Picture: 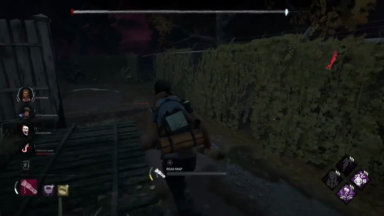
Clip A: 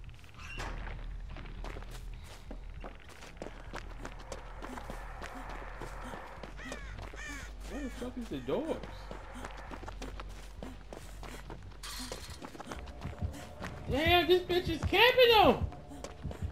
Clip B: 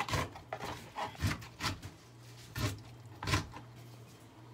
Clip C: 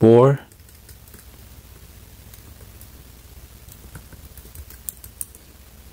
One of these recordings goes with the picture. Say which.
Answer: A